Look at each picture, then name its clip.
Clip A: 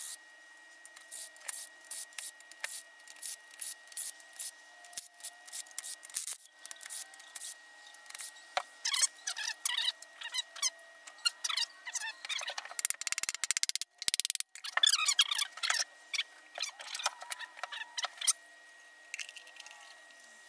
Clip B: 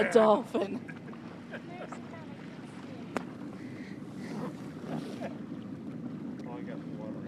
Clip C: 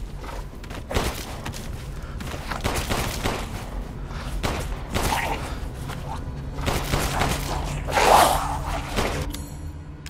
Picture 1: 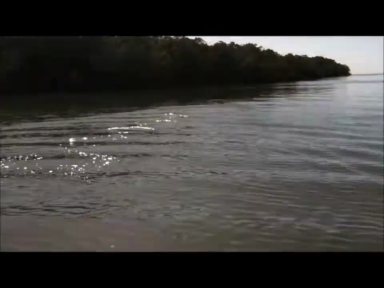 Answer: B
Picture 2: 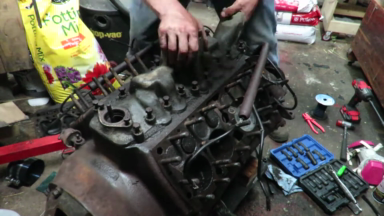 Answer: A